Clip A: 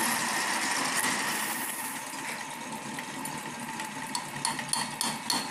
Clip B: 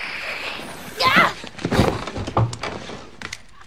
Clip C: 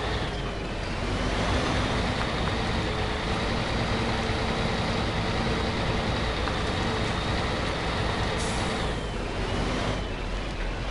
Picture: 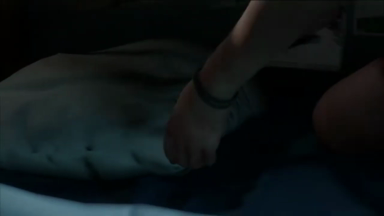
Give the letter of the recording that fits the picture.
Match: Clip B